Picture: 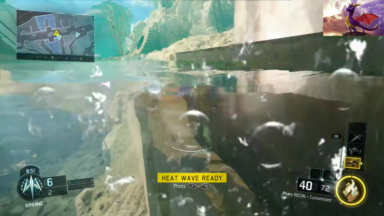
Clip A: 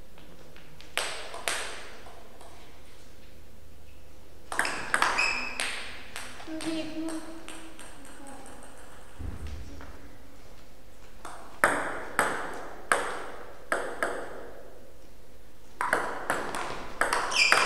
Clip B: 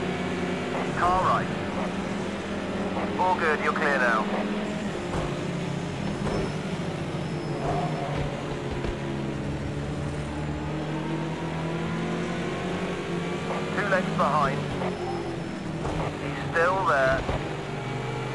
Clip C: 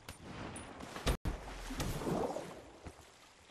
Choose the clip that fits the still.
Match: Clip C